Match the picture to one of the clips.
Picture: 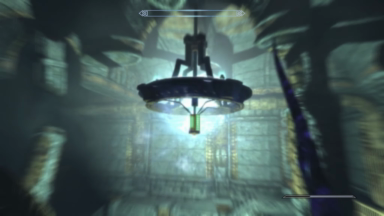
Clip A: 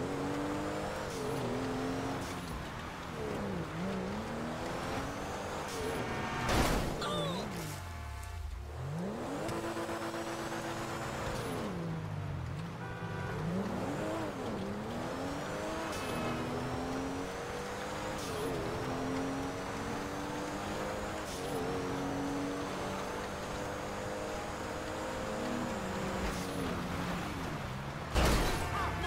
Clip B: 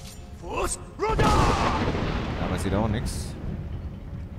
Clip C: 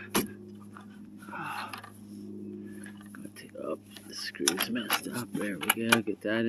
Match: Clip B